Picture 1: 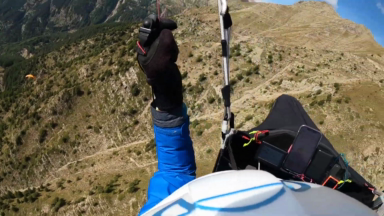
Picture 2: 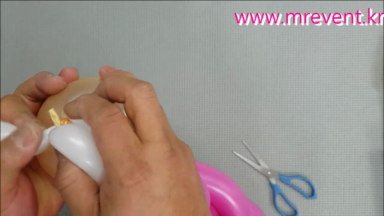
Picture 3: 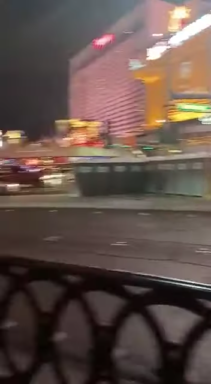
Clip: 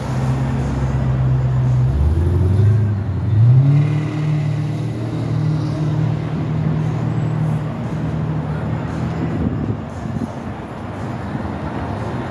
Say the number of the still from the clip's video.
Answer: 3